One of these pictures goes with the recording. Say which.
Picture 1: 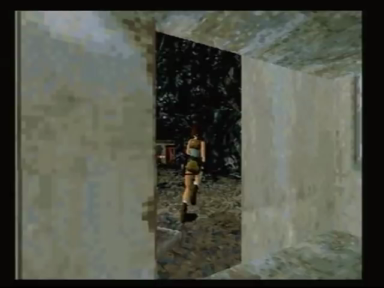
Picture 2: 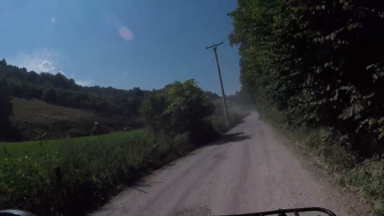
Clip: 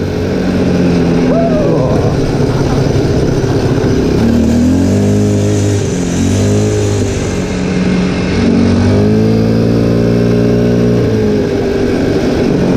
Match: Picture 2